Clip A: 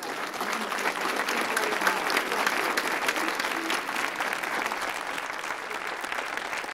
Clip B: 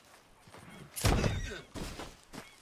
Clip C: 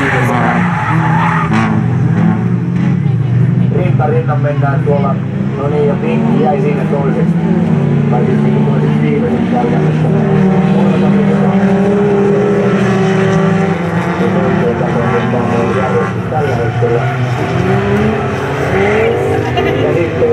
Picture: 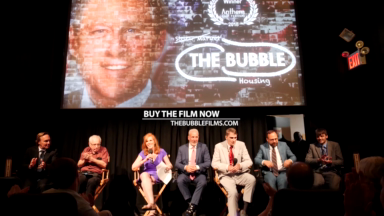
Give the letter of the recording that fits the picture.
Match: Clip A